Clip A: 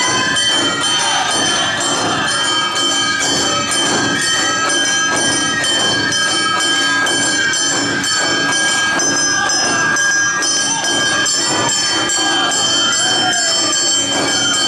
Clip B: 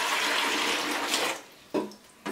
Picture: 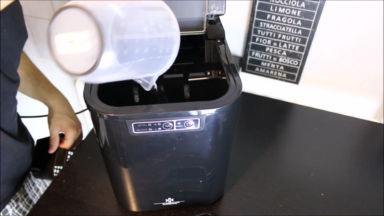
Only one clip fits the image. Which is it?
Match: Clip B